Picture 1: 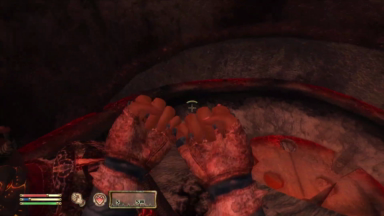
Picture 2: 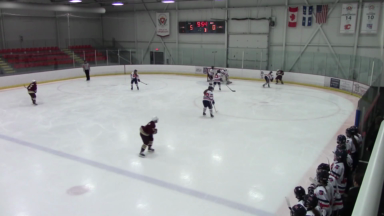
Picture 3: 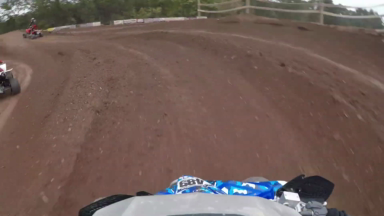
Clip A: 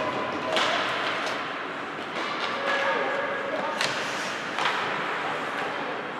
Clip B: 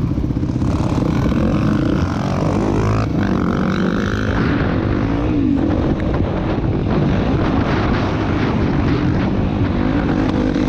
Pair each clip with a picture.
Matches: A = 2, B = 3